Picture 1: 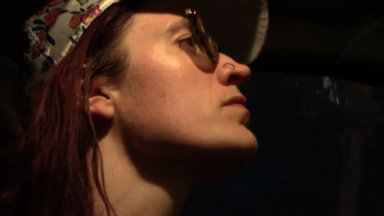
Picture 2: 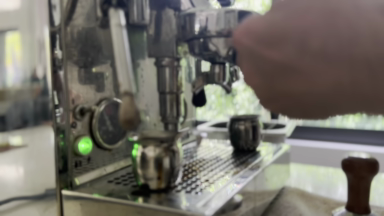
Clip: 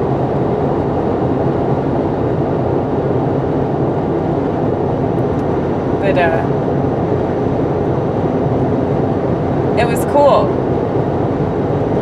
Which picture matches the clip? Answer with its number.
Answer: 1